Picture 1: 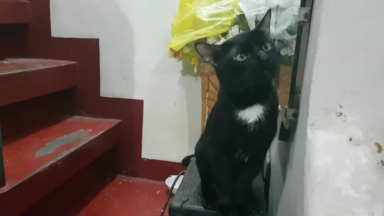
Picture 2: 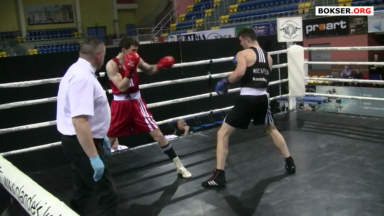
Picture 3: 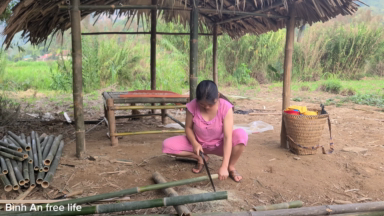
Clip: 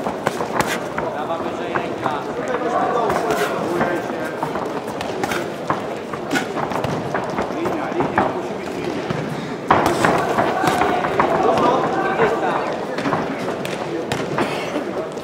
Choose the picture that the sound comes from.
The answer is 2